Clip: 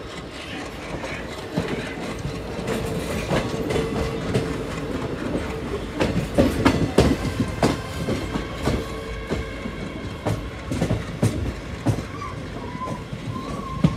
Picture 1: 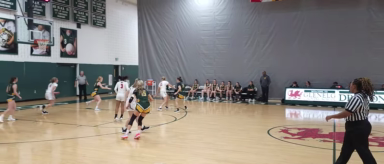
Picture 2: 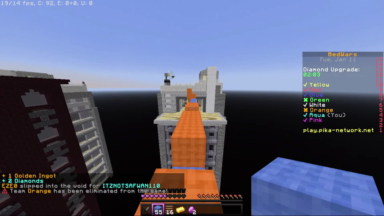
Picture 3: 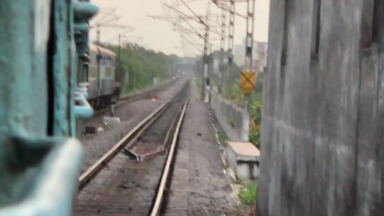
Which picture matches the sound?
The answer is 3